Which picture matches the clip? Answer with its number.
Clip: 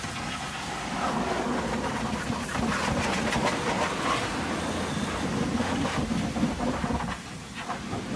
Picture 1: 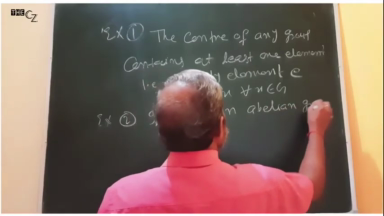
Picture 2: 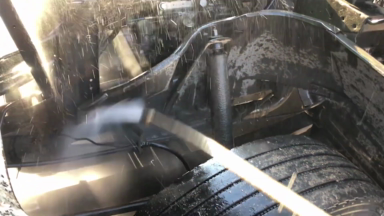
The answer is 2